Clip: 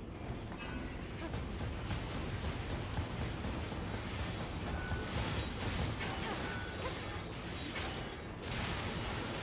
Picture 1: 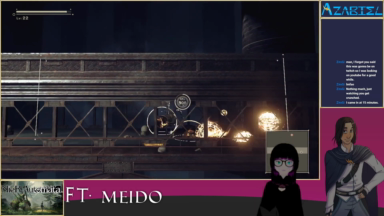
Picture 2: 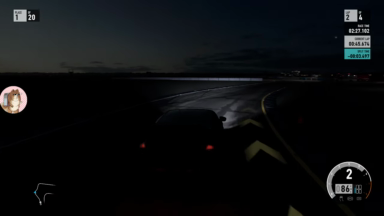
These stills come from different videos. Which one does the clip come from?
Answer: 1